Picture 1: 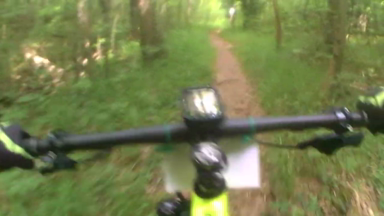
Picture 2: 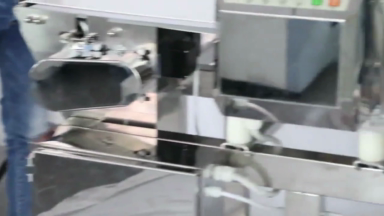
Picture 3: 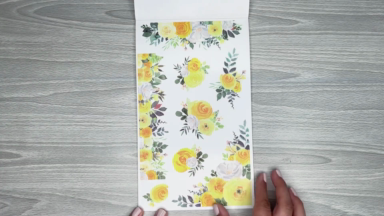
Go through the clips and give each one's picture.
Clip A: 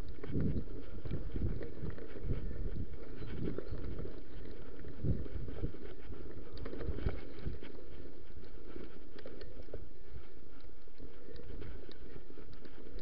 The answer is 1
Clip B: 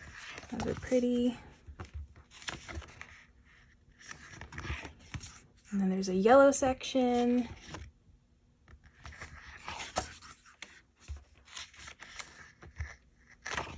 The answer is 3